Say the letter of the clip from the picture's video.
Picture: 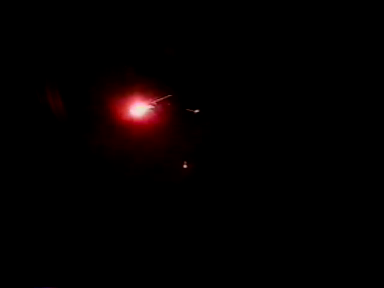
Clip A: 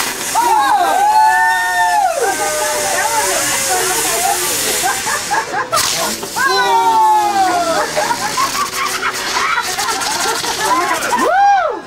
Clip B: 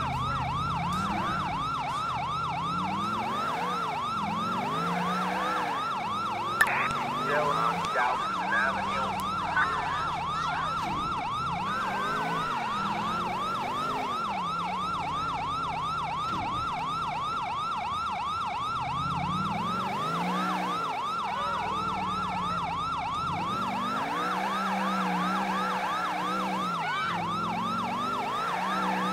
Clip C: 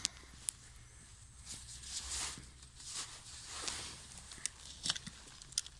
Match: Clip A